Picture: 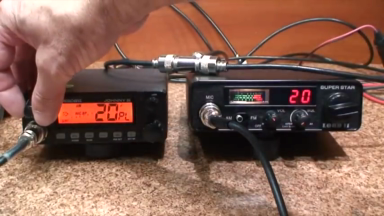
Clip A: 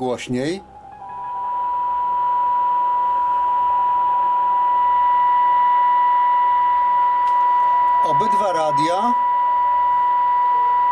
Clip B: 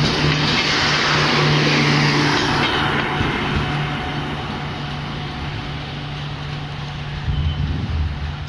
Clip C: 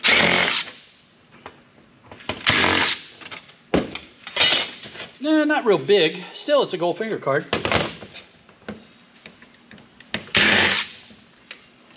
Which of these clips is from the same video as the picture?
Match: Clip A